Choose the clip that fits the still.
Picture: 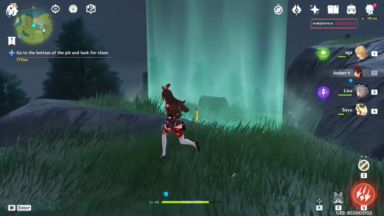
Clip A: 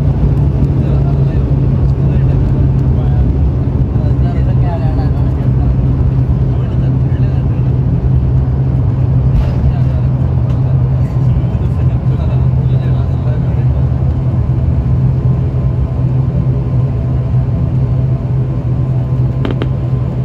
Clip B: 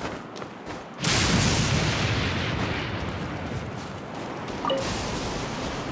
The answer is B